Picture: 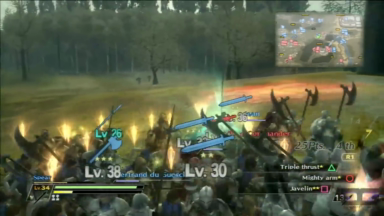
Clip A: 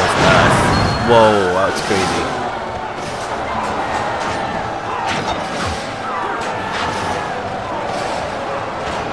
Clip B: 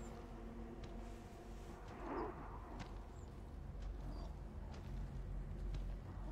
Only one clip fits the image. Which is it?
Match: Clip A